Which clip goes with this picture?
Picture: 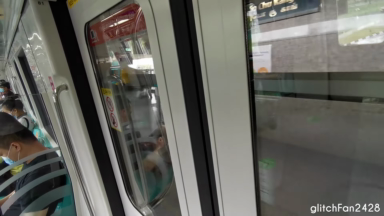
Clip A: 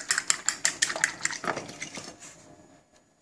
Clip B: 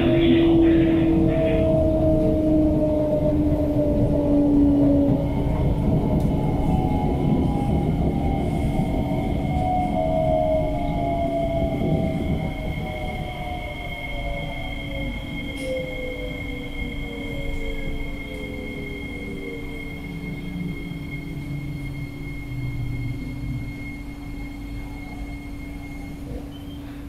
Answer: B